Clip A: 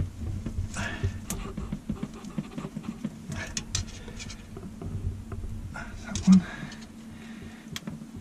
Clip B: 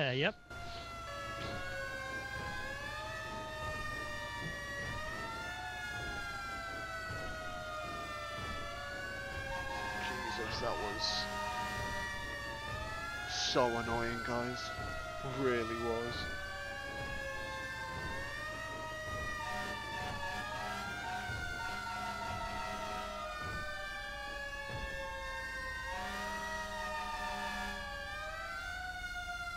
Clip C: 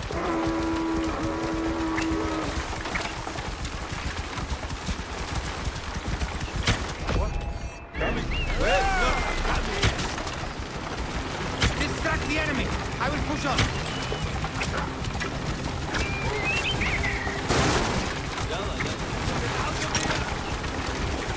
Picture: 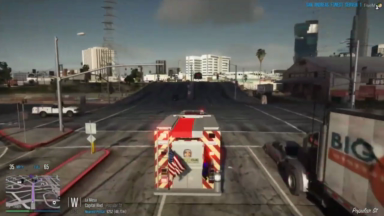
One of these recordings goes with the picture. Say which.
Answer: B